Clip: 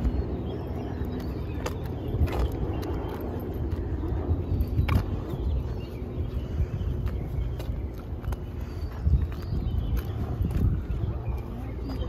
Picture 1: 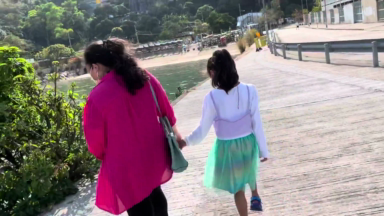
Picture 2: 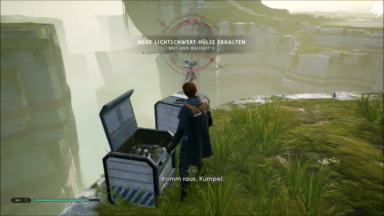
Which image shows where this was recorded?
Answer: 1